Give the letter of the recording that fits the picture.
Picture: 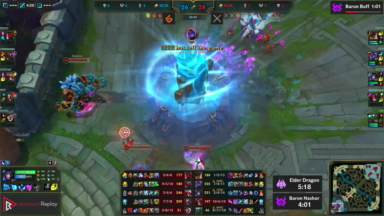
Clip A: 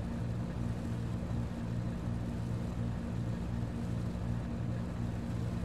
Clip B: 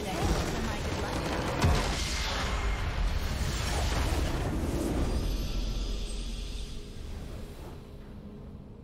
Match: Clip B